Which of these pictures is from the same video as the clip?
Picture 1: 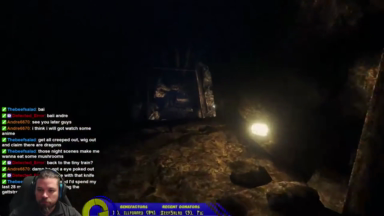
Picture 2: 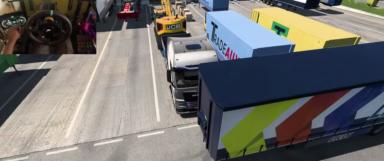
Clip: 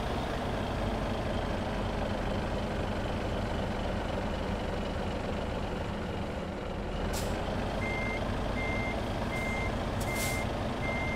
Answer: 2